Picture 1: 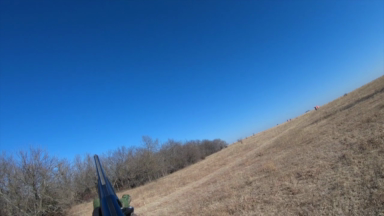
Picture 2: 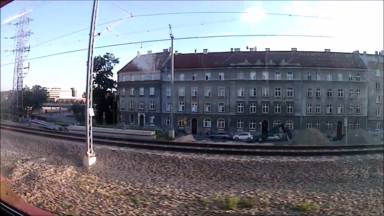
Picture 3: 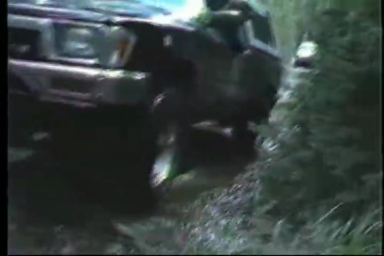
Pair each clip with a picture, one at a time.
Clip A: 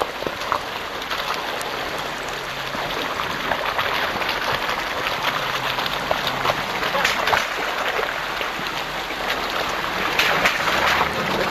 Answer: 3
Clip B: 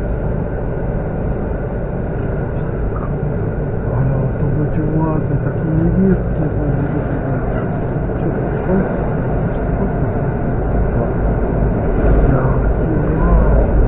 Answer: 2